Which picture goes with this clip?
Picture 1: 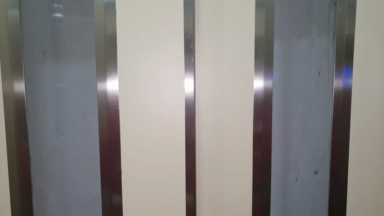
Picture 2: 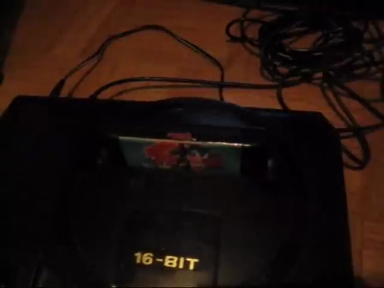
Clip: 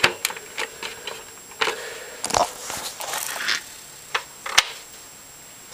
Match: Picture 2